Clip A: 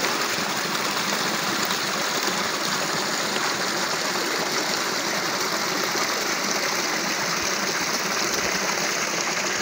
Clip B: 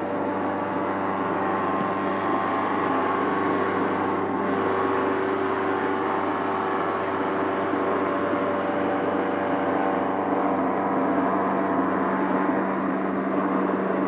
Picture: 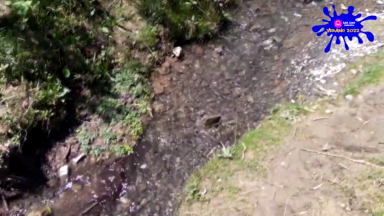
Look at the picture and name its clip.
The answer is A